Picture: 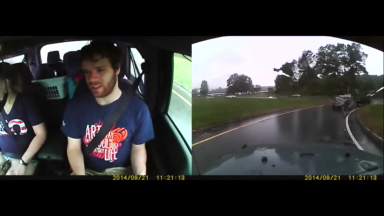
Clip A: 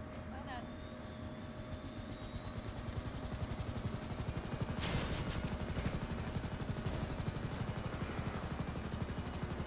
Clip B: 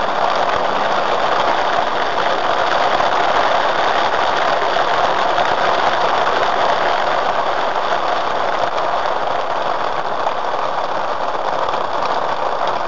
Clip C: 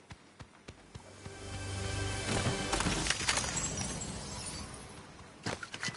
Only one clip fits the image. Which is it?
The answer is B